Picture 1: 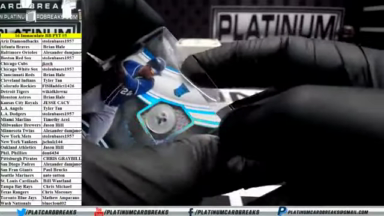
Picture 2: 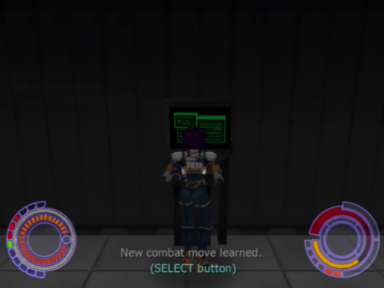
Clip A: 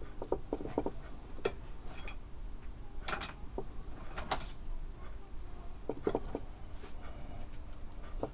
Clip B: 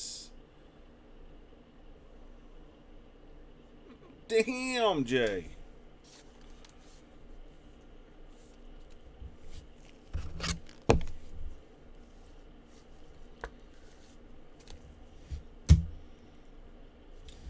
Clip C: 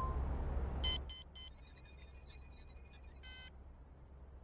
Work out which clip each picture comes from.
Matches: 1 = B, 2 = C